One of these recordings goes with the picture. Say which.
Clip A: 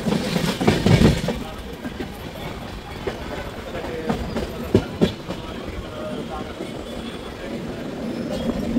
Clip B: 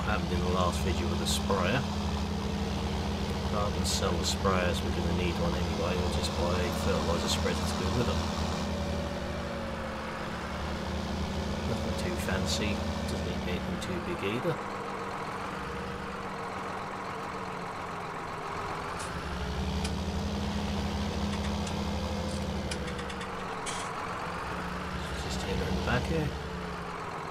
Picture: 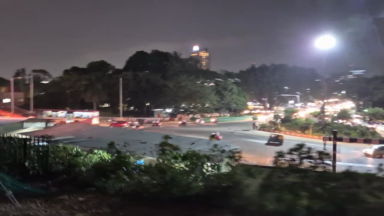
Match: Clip A